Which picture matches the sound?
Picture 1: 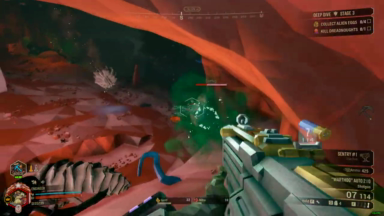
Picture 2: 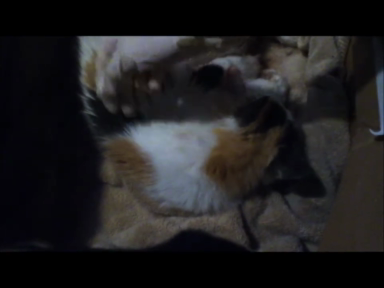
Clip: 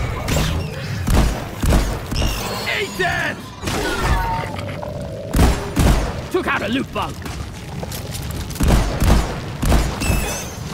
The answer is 1